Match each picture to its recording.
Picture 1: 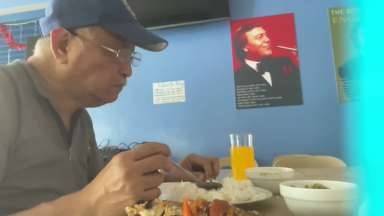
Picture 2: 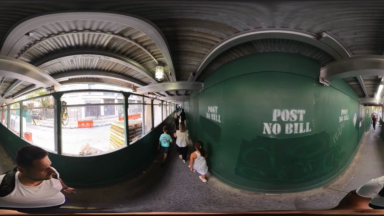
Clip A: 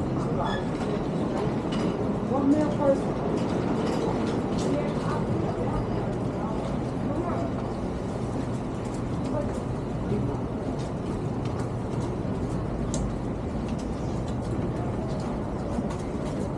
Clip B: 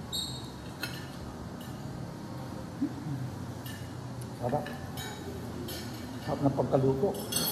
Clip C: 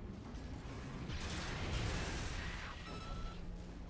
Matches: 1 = B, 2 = A